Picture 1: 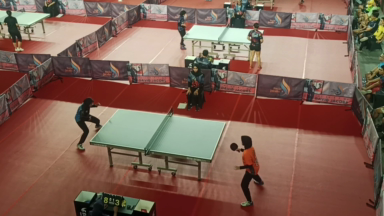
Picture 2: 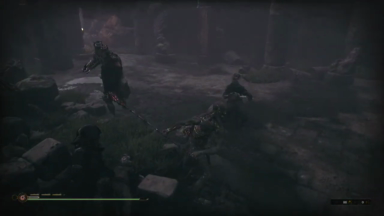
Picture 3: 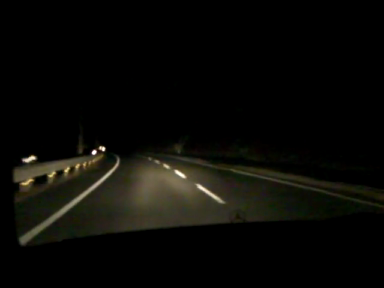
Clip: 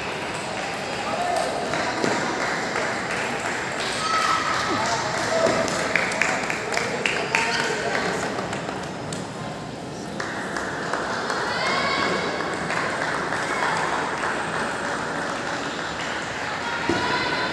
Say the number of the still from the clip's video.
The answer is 1